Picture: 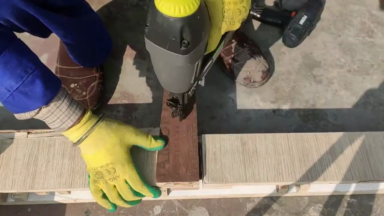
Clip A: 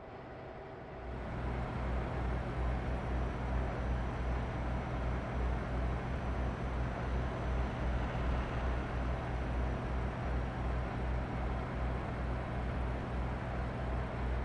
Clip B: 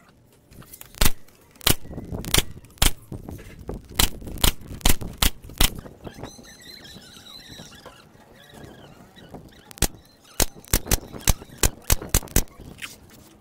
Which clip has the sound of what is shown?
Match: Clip B